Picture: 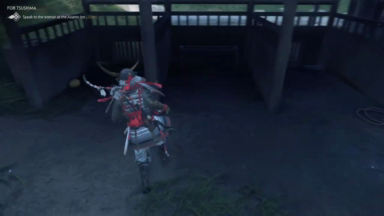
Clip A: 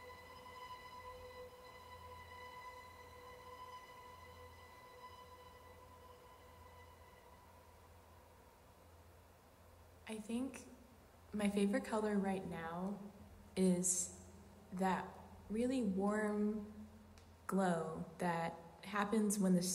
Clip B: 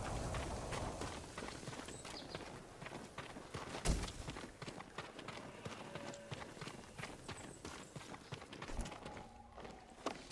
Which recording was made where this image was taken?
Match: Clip B